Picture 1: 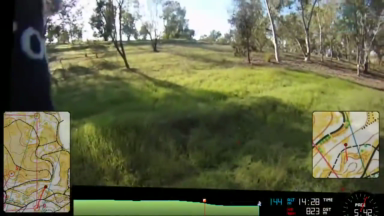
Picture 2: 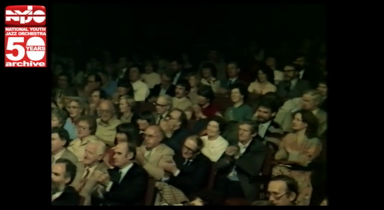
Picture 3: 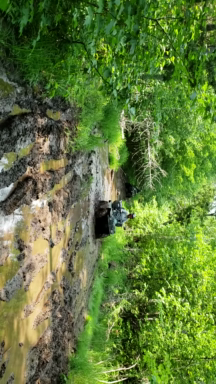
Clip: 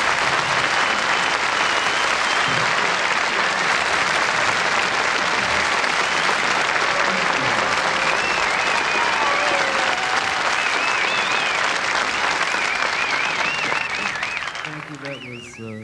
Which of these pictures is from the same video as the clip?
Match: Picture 2